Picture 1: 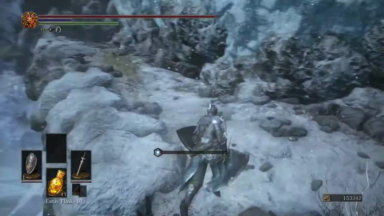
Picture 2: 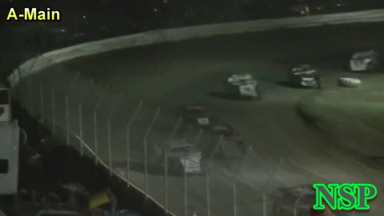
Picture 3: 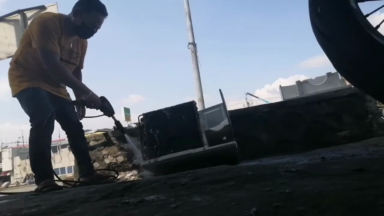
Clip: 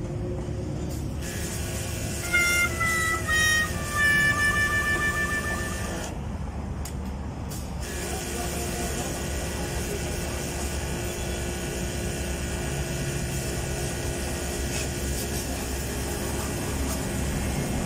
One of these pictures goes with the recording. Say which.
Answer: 3